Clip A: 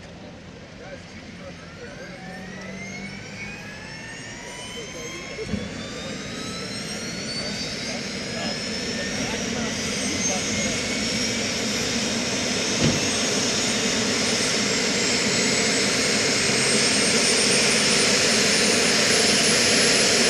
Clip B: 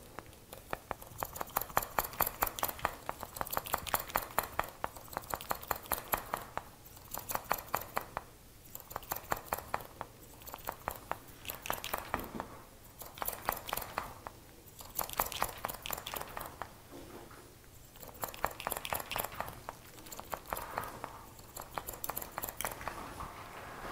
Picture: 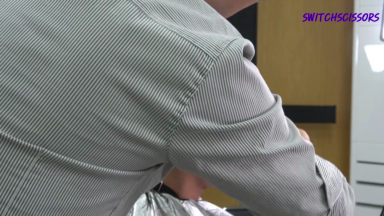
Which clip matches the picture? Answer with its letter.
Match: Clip B